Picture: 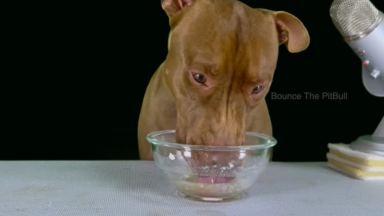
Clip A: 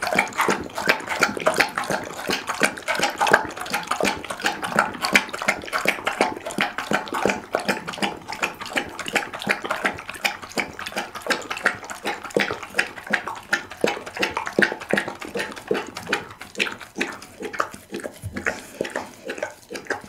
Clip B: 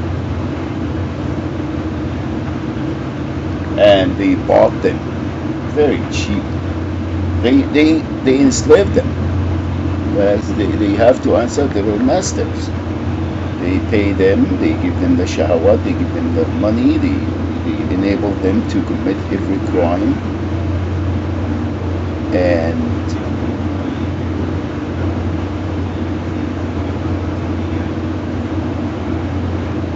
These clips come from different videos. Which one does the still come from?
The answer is A